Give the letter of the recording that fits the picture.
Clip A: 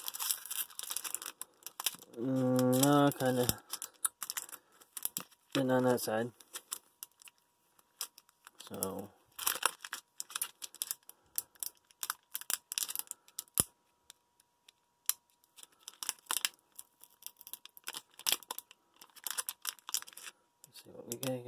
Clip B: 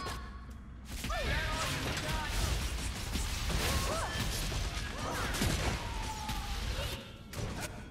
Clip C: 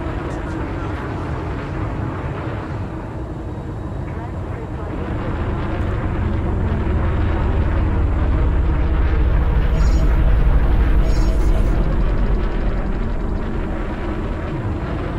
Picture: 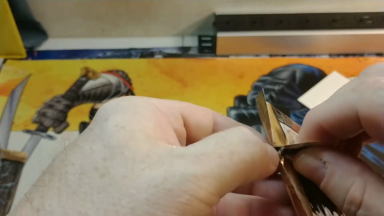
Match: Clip A